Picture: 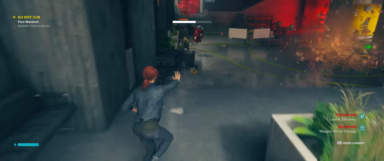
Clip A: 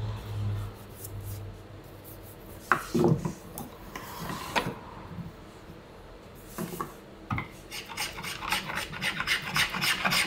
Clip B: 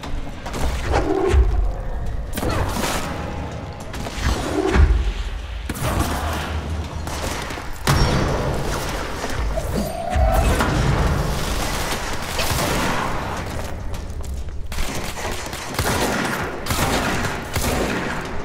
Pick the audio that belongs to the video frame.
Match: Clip B